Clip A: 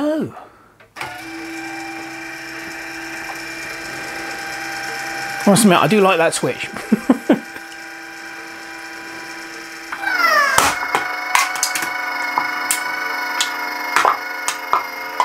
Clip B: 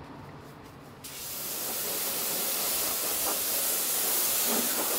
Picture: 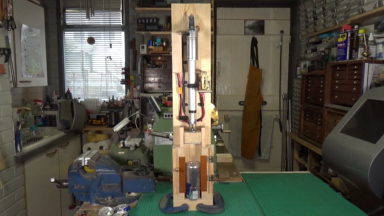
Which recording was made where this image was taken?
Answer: A